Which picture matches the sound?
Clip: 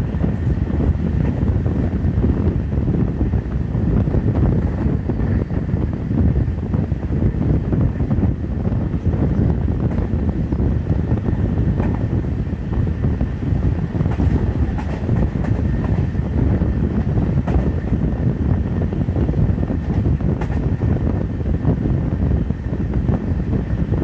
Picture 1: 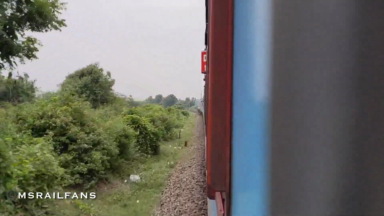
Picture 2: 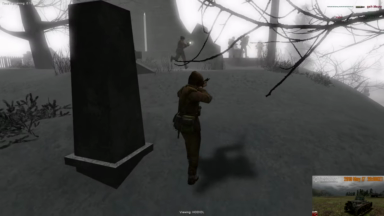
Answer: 1